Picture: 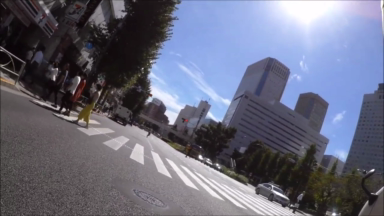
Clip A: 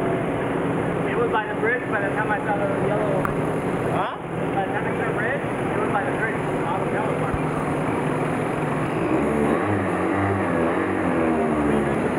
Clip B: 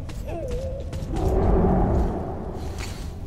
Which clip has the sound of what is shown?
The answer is A